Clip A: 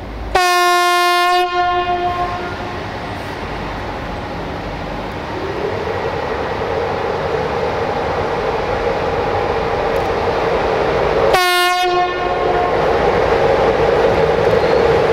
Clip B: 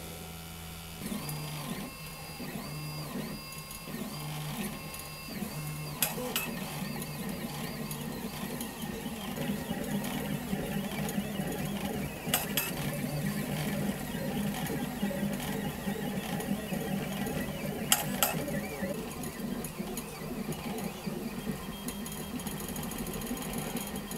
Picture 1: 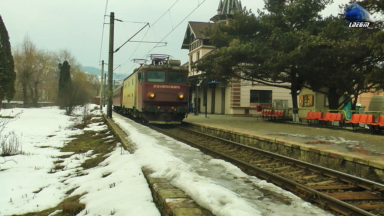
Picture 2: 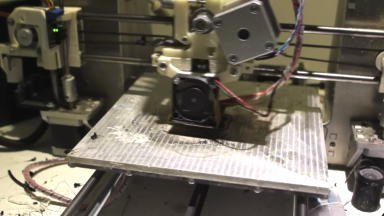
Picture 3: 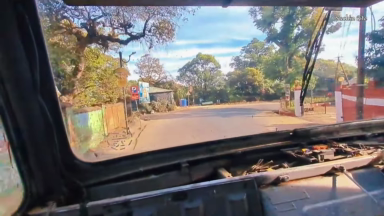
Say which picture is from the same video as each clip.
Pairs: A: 1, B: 2